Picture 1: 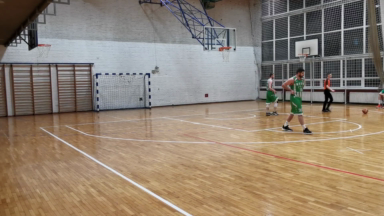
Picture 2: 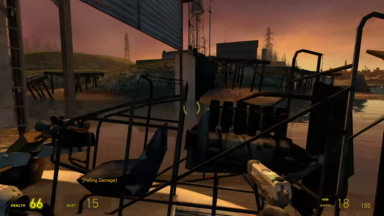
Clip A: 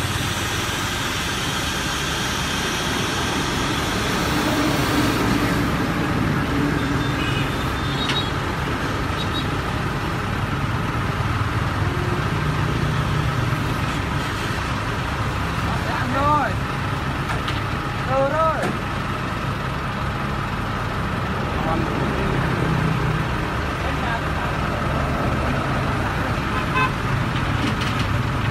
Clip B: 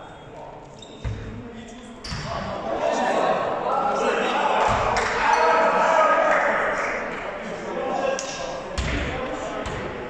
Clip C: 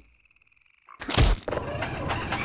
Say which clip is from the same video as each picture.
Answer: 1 B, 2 C